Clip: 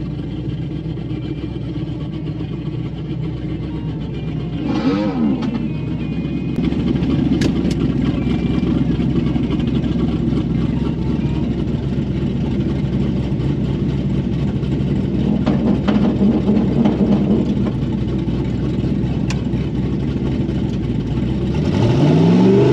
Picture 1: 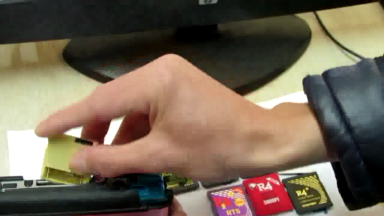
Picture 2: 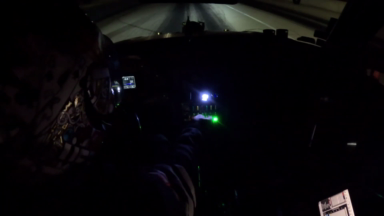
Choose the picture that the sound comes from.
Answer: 2